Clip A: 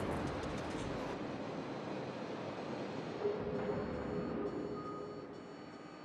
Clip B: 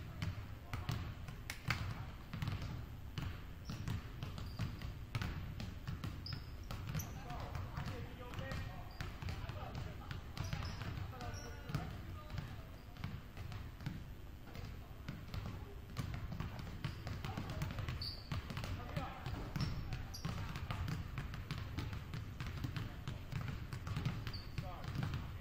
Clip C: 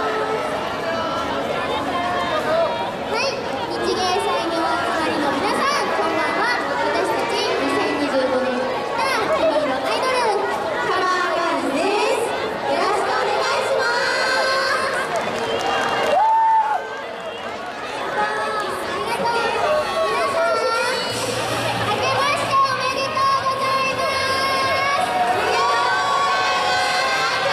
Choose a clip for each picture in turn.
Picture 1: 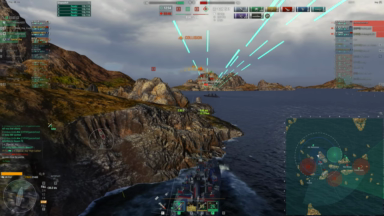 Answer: A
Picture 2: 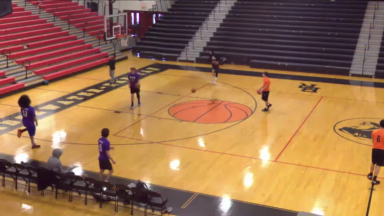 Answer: B